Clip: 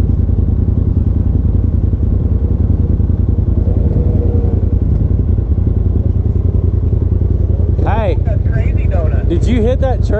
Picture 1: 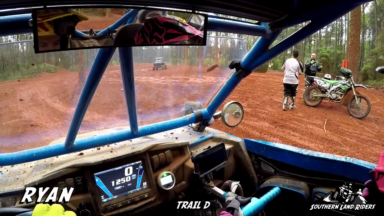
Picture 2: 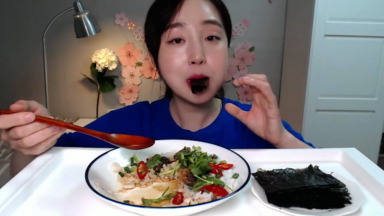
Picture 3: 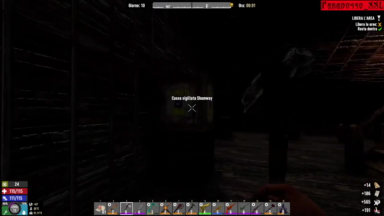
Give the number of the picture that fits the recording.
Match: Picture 1